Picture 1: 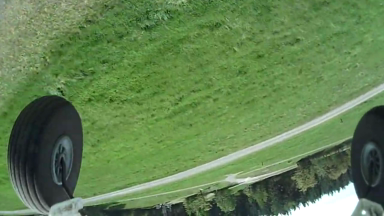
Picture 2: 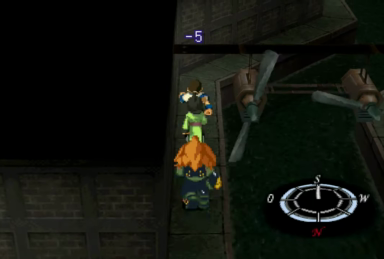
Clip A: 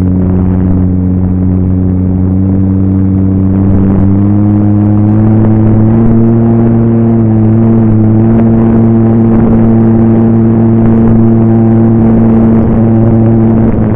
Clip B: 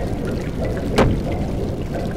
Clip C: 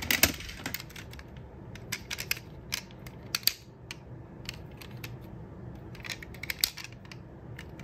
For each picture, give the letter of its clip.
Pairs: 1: A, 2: B